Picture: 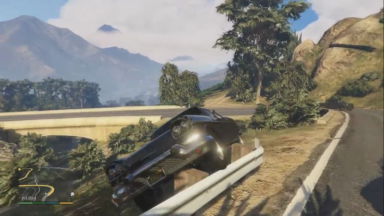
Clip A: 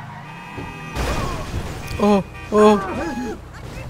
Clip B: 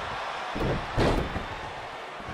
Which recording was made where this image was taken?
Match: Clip A